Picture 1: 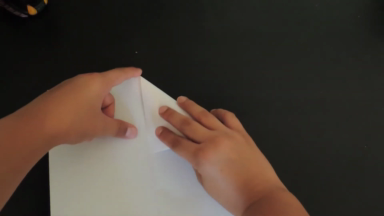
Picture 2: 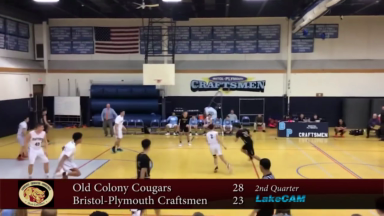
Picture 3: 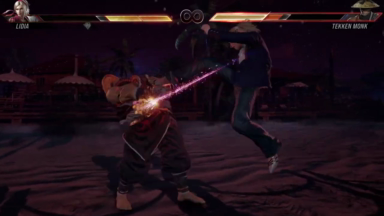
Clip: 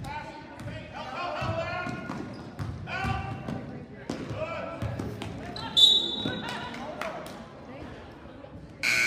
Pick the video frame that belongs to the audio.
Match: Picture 2